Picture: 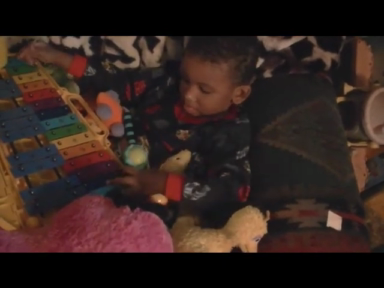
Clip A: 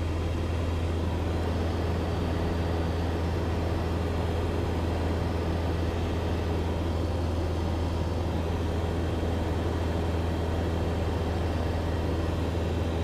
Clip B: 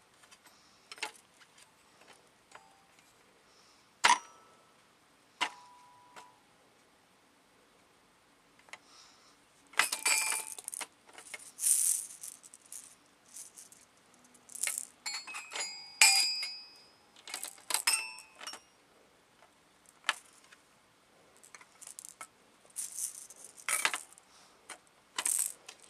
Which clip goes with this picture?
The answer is B